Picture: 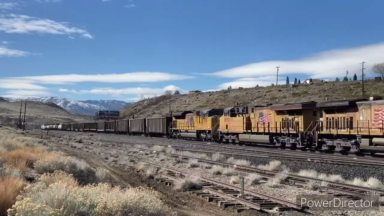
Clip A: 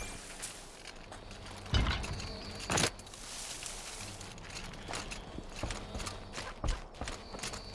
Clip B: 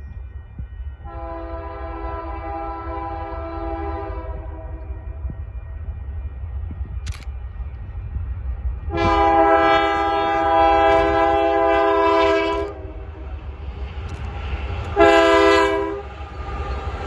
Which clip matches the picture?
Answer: B